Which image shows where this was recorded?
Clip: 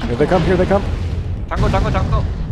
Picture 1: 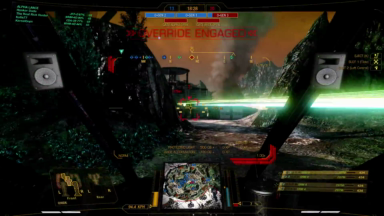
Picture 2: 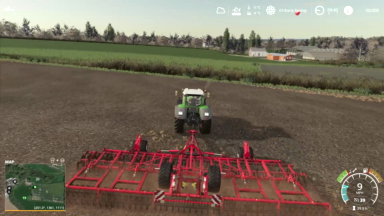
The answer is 1